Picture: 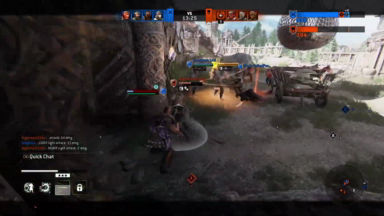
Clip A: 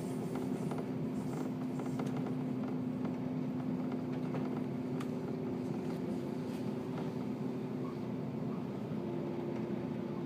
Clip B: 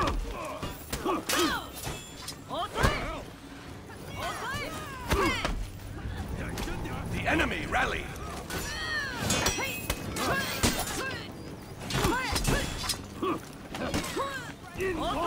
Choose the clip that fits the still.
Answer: B